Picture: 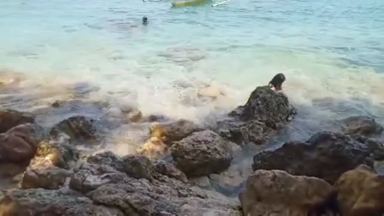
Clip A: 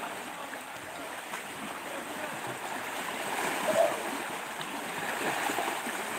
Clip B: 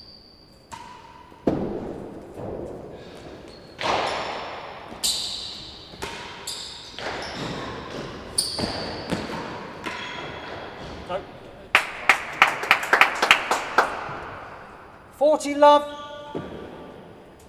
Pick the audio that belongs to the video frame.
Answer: A